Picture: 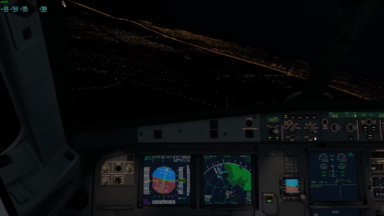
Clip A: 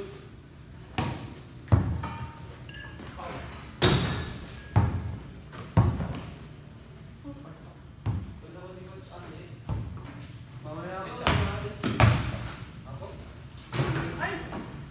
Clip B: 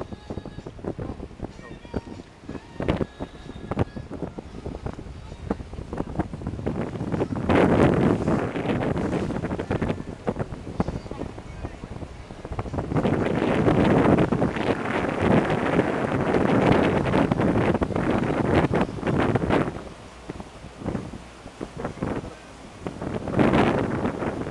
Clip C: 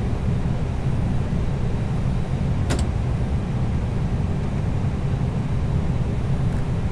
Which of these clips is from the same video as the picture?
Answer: C